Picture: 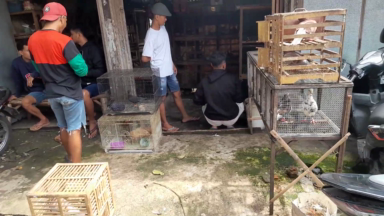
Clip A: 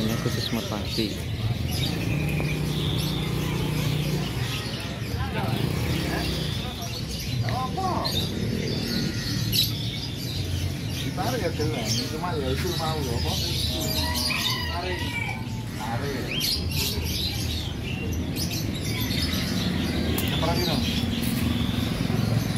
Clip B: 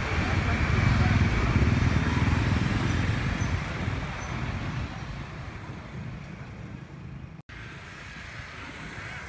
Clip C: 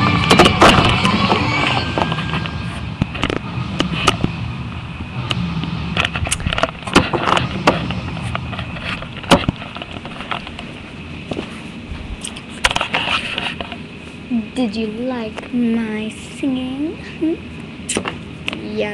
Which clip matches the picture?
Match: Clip A